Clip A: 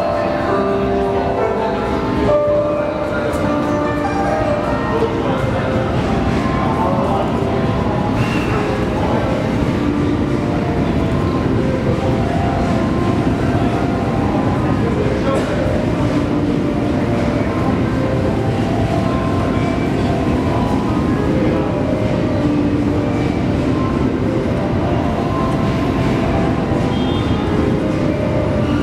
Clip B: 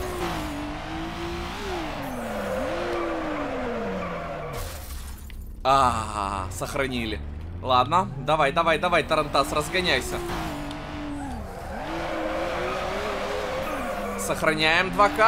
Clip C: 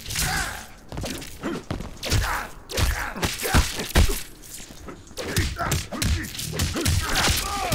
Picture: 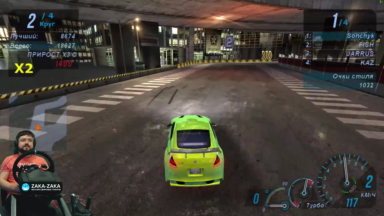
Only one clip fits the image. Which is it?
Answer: B